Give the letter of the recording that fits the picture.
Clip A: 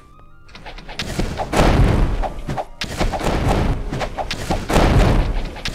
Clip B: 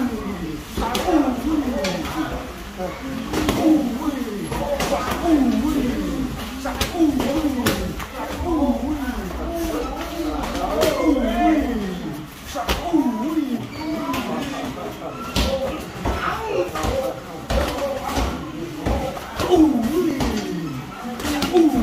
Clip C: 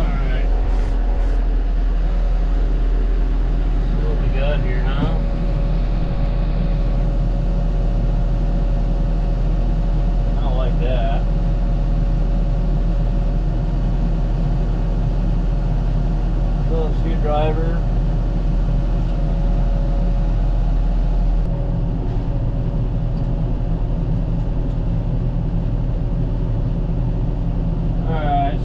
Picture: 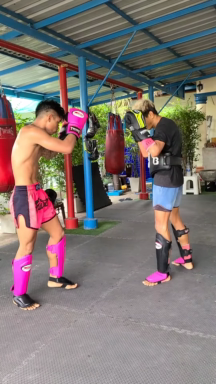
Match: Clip B